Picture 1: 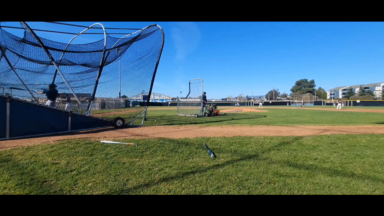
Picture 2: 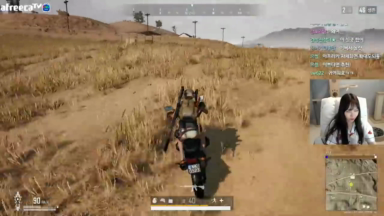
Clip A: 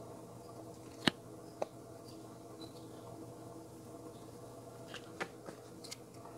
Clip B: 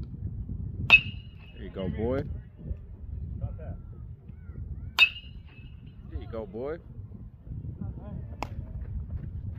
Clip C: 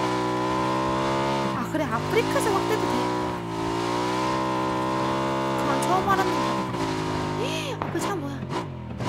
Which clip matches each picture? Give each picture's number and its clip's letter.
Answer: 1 B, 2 C